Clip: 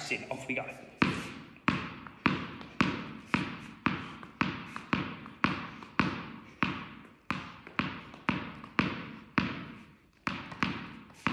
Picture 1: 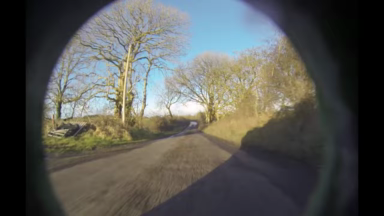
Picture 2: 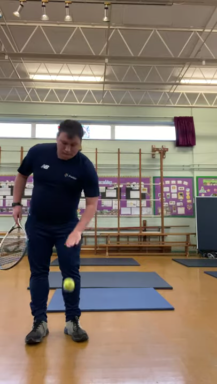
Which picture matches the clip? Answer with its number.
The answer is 2